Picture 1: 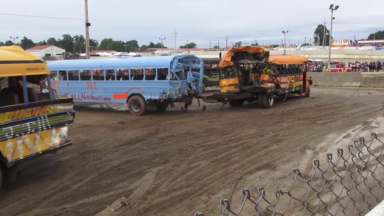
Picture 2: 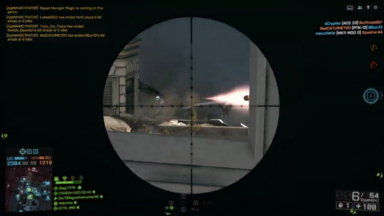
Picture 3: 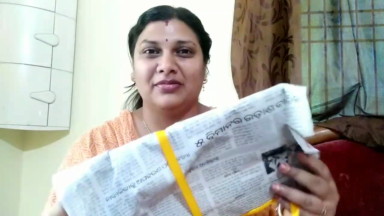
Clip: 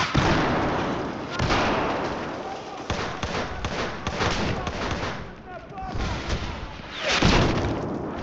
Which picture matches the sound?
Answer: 2